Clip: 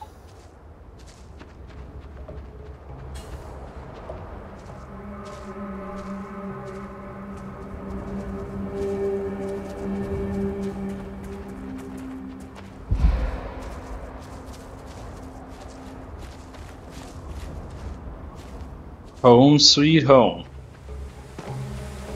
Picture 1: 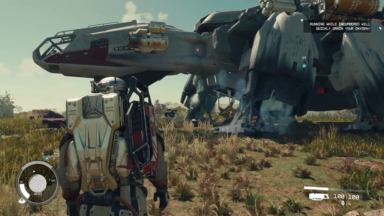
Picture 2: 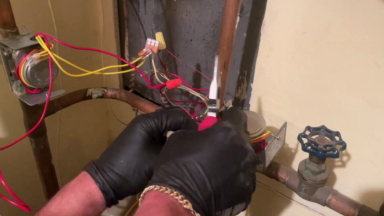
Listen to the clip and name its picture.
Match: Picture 1